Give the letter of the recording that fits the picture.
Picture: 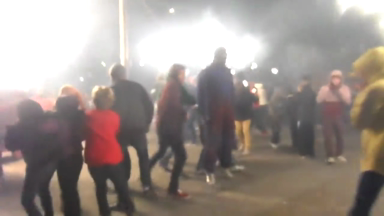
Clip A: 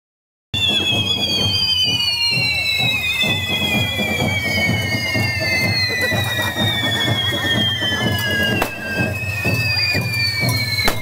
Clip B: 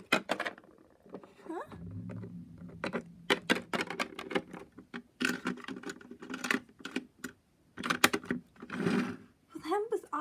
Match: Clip A